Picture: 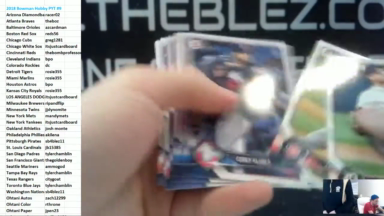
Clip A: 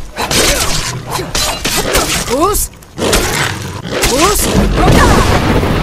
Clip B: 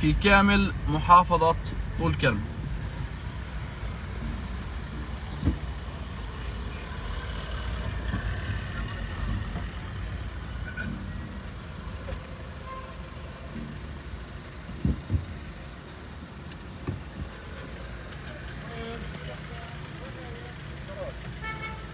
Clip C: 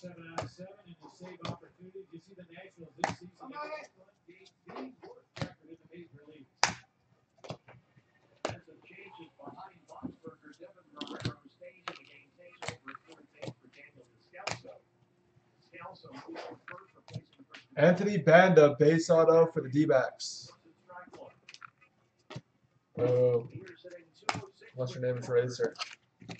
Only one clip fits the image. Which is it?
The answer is C